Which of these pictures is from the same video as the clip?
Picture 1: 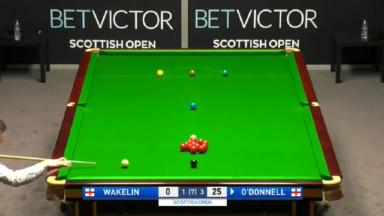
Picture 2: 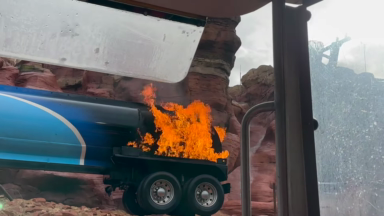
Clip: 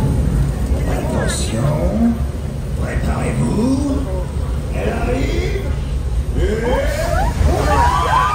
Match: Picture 2